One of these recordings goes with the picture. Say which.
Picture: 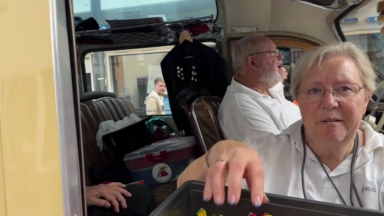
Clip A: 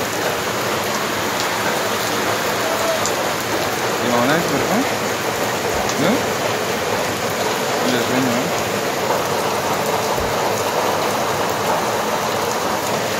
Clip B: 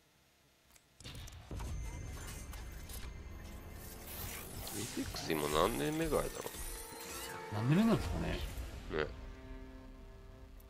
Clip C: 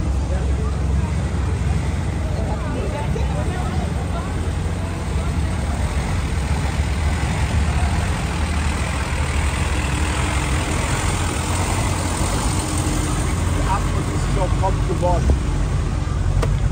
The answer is C